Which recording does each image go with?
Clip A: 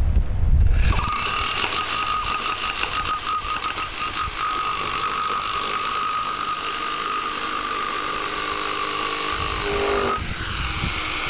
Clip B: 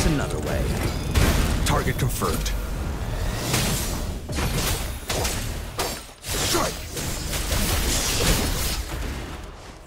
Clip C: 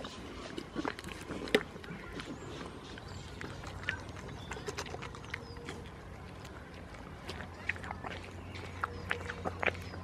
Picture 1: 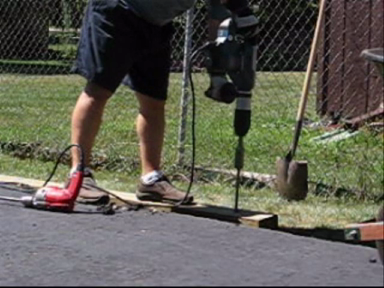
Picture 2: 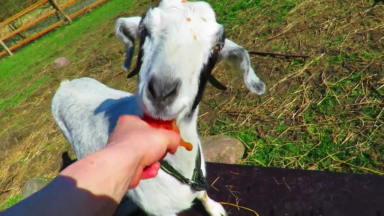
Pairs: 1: A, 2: C